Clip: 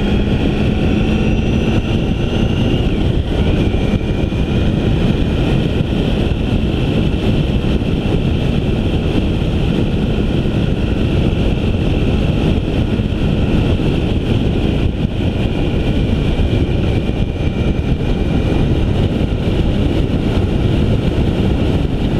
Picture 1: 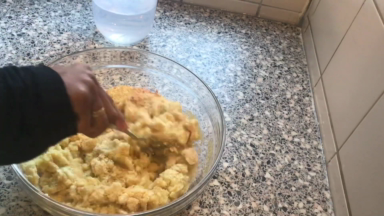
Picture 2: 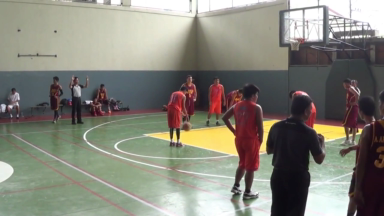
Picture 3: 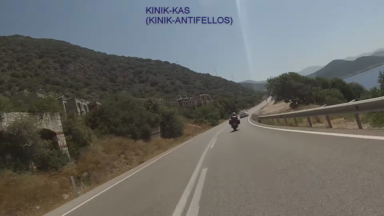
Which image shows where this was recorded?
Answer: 3